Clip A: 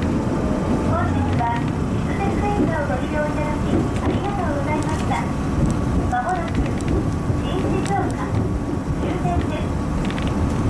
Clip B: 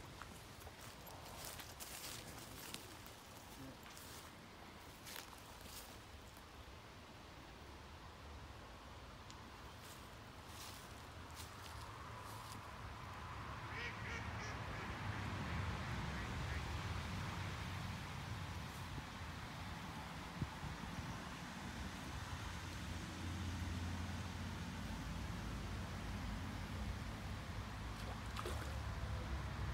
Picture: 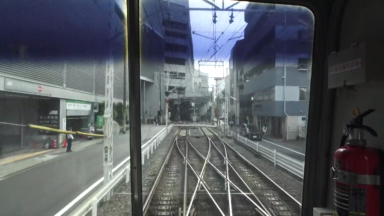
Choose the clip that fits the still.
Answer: A